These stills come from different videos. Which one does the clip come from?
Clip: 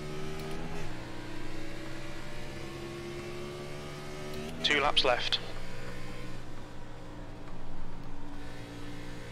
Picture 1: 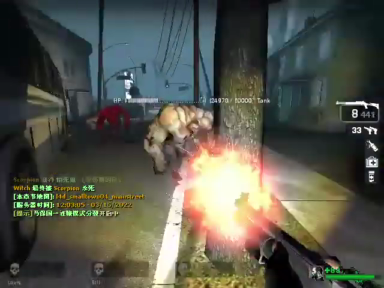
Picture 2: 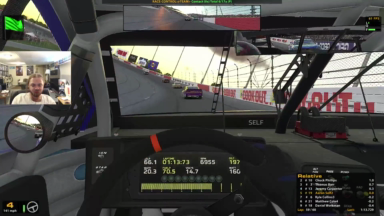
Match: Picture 2